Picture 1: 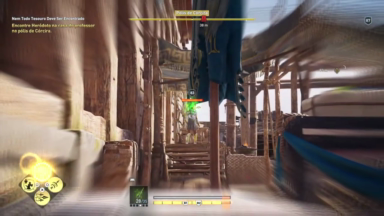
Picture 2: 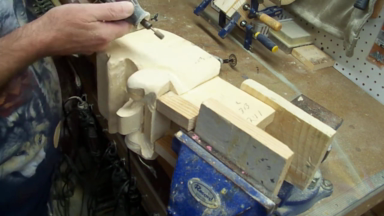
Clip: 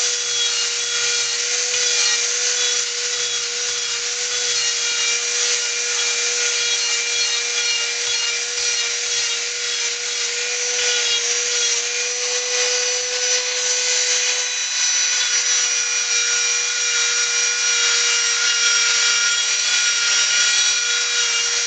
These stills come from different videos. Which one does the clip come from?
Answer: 2